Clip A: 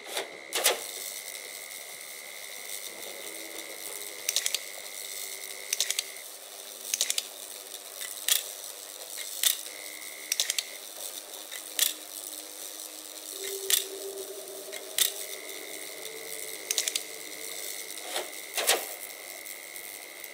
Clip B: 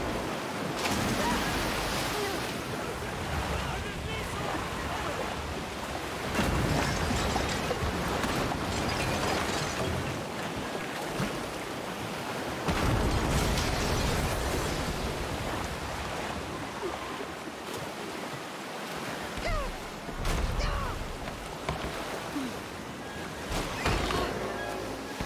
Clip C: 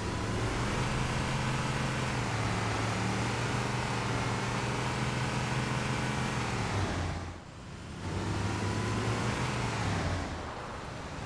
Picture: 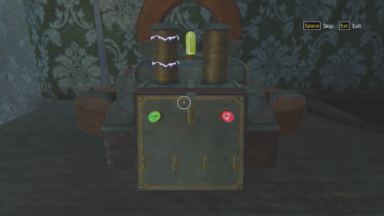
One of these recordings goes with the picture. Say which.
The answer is A